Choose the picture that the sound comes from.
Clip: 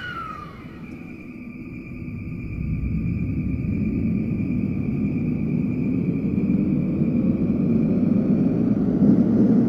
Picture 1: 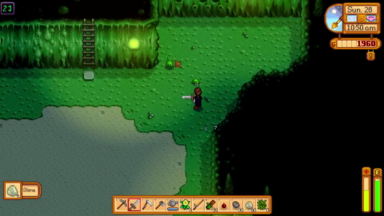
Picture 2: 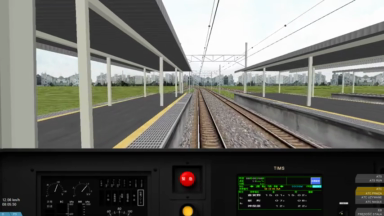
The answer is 2